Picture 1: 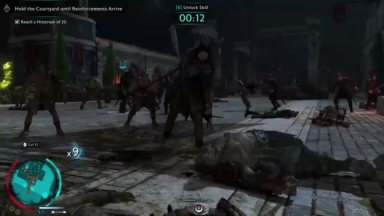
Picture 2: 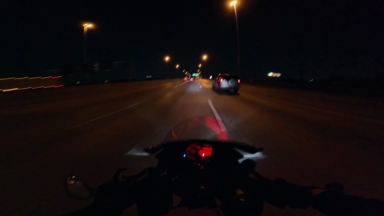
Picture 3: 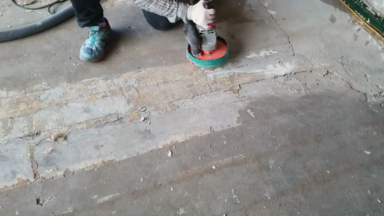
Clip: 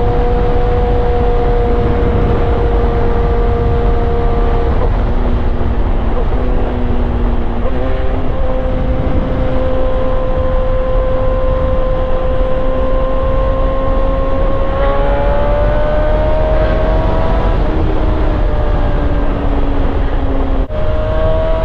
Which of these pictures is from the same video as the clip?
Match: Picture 2